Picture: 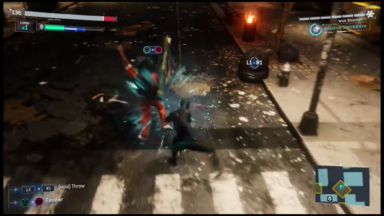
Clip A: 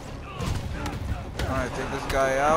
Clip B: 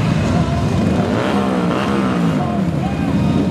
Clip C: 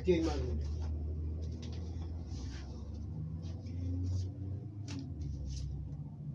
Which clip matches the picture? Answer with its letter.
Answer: A